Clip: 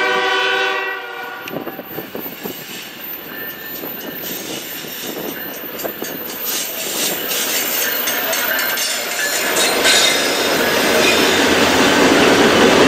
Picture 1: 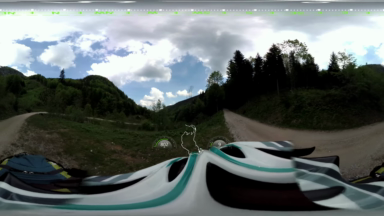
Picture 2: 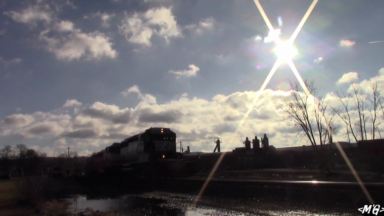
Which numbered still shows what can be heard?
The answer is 2